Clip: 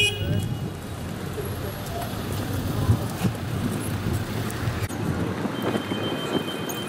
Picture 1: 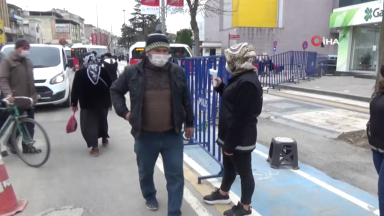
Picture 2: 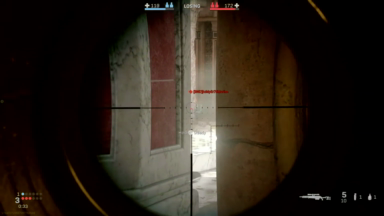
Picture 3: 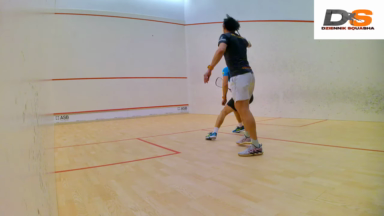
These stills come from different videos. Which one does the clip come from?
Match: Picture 1